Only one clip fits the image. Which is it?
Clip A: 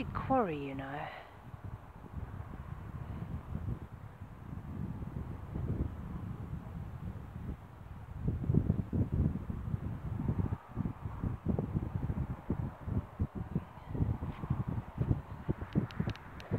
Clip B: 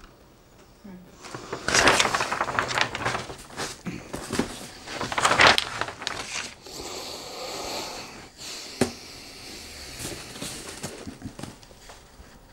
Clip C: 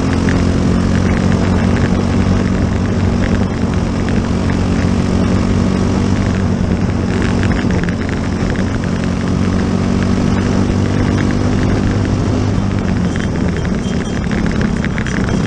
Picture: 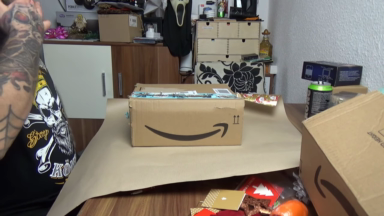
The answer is B